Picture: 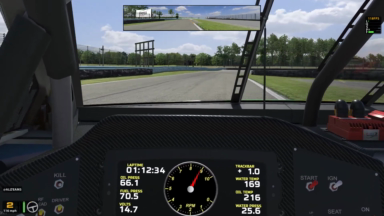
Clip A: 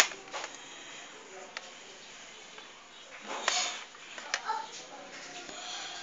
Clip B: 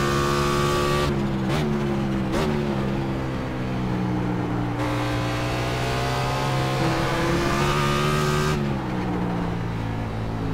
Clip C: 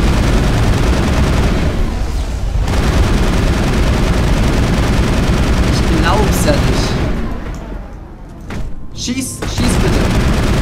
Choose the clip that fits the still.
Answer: B